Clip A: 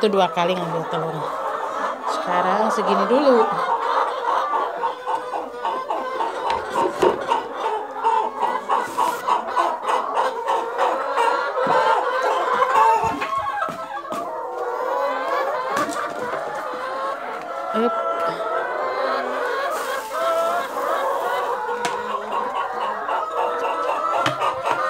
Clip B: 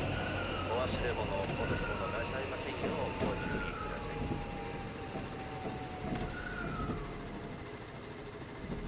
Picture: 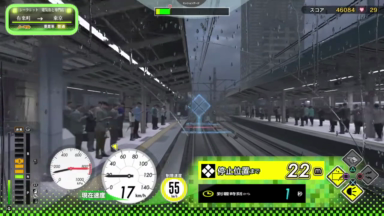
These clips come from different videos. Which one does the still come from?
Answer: B